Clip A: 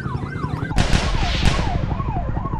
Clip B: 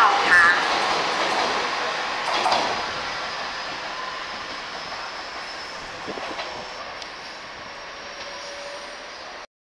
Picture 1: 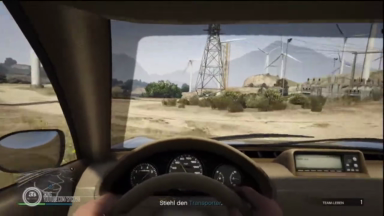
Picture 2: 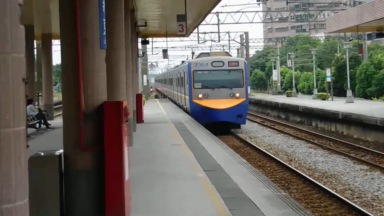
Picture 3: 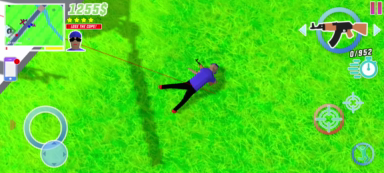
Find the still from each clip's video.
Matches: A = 3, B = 2